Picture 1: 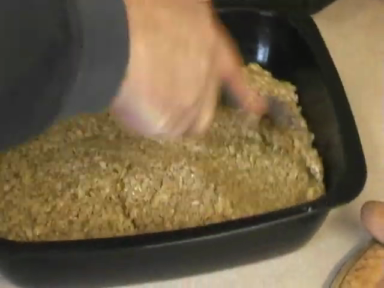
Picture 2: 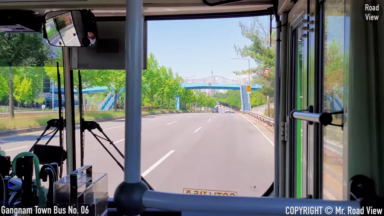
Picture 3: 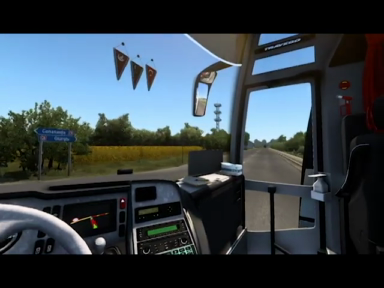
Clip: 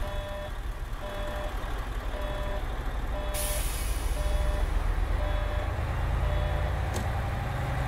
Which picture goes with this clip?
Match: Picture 3